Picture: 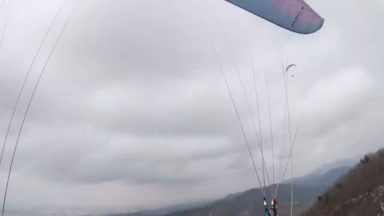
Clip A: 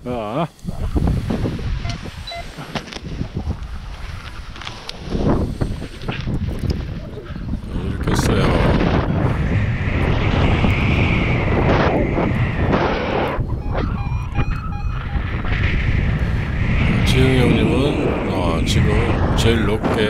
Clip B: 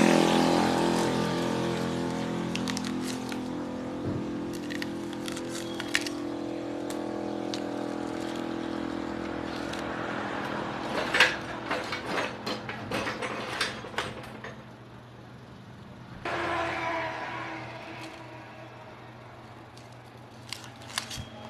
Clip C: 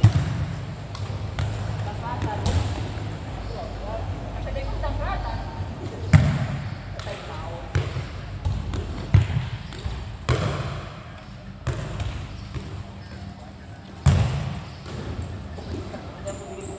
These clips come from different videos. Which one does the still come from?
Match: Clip A